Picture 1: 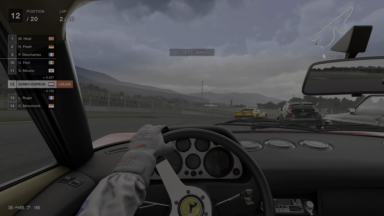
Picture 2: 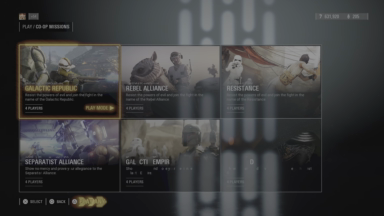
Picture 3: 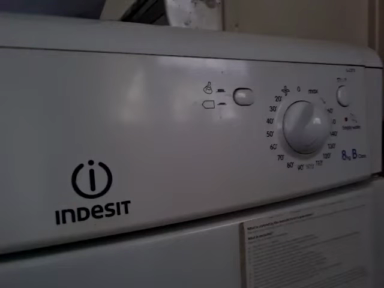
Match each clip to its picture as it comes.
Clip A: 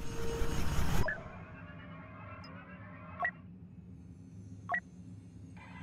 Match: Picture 2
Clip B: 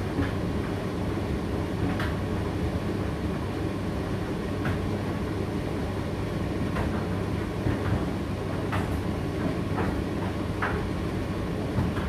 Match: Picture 3